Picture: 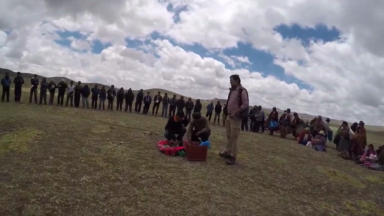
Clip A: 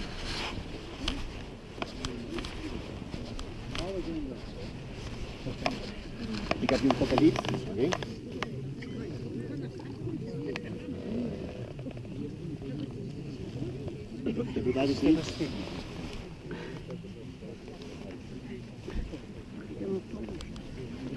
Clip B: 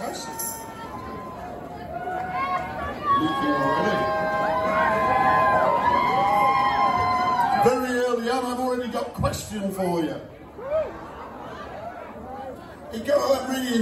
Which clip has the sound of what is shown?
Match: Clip A